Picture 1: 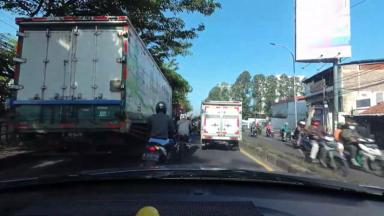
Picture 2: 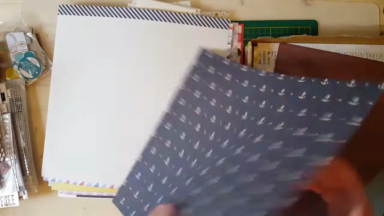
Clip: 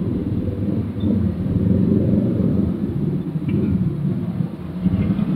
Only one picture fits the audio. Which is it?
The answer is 1